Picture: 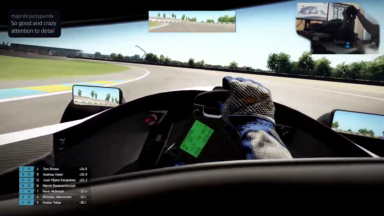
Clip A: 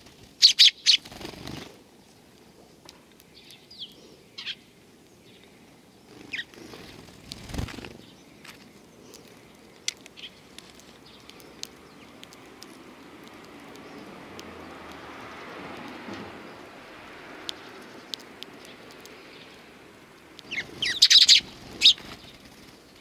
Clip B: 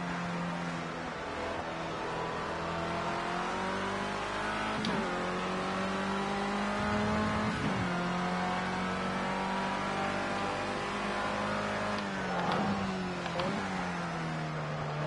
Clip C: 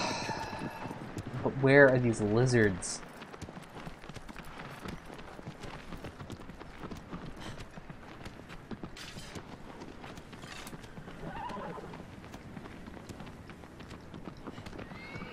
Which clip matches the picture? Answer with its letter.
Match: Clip B